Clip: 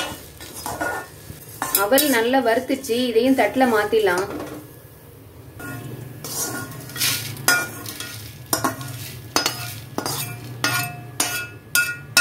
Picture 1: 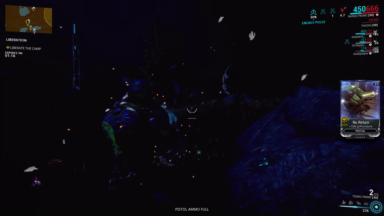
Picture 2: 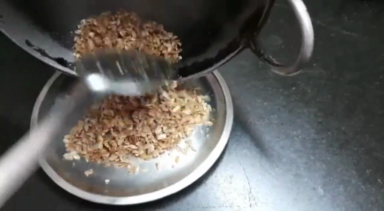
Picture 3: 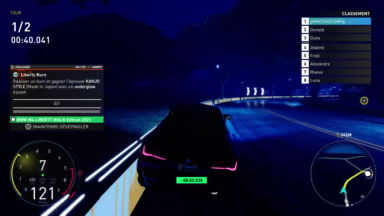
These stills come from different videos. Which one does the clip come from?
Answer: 2